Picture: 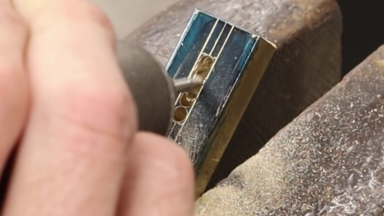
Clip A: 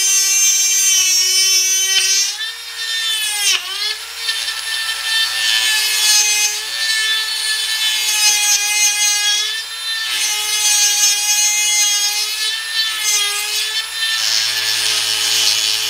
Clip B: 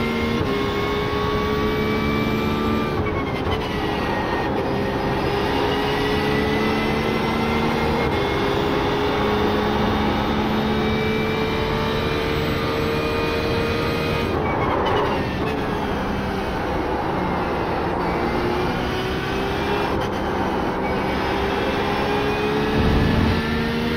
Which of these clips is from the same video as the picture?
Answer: A